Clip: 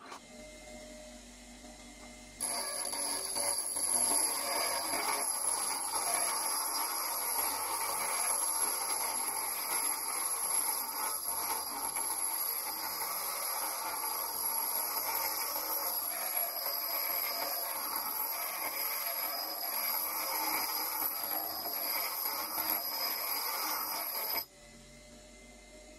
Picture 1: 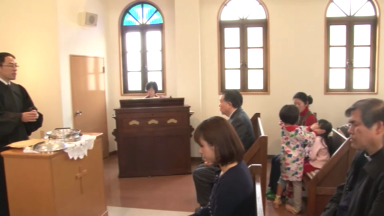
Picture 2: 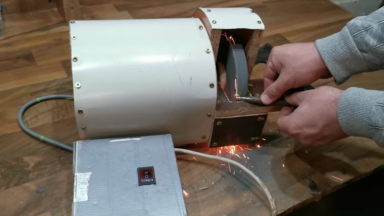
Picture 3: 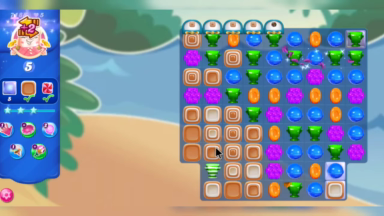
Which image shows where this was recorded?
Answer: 2